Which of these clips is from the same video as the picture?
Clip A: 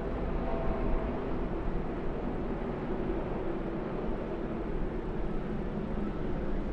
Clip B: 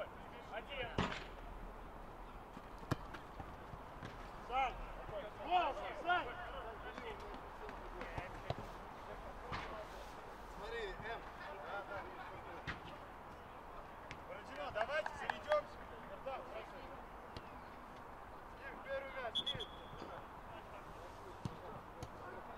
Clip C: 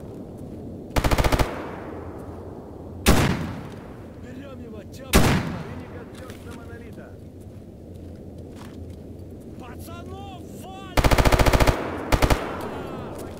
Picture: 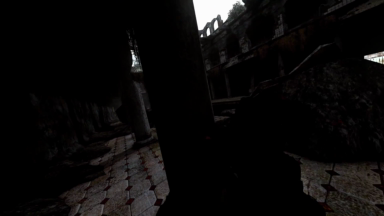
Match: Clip C